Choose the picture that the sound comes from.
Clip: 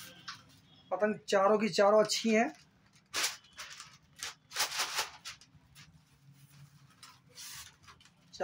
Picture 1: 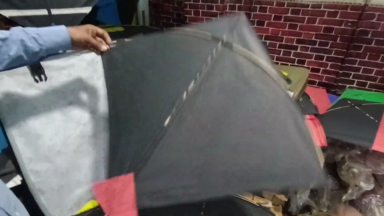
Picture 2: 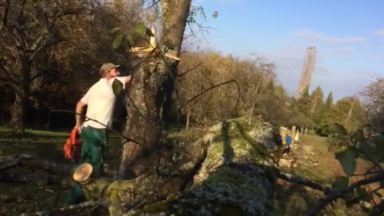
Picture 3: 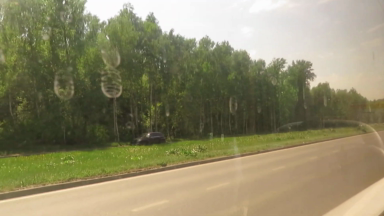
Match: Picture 1